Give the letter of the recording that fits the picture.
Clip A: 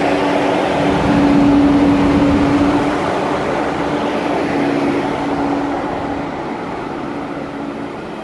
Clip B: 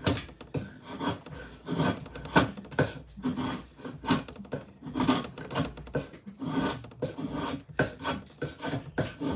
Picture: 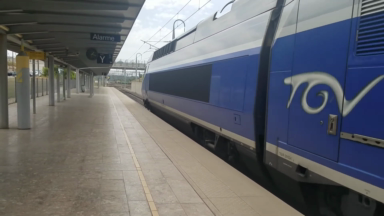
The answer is A